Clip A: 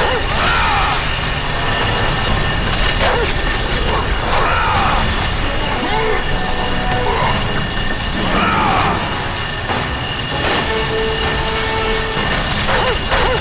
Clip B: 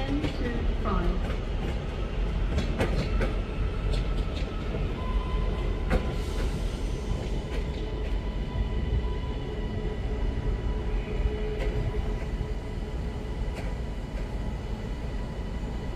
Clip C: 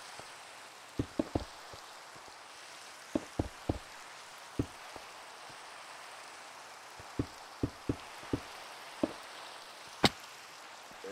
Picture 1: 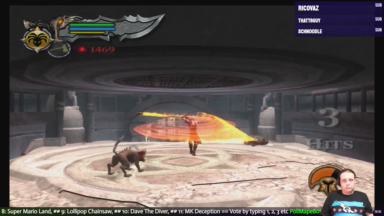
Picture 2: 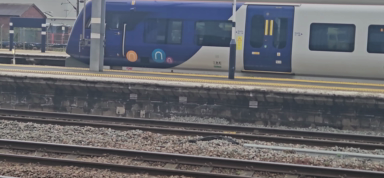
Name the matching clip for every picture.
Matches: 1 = A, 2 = B